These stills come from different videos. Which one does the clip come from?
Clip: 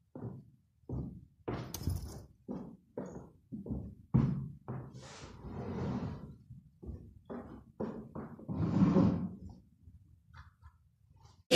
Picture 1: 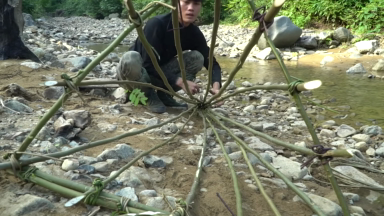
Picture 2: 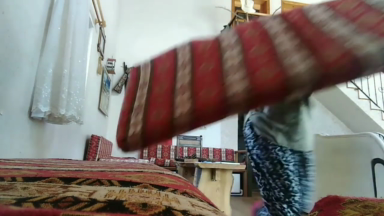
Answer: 2